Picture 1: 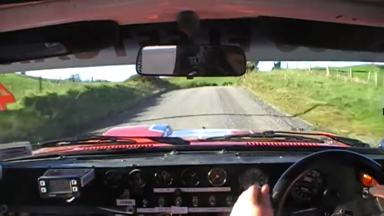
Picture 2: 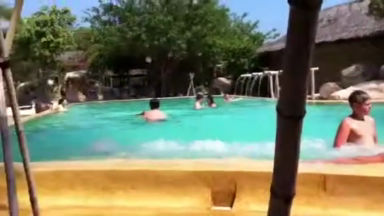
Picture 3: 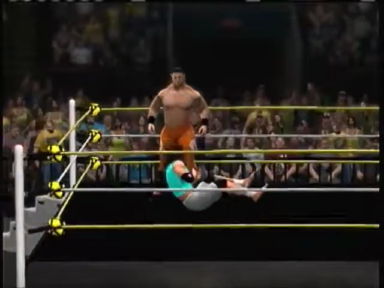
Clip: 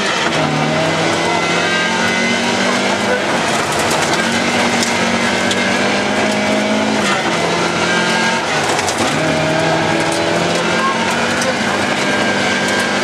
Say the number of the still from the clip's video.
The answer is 1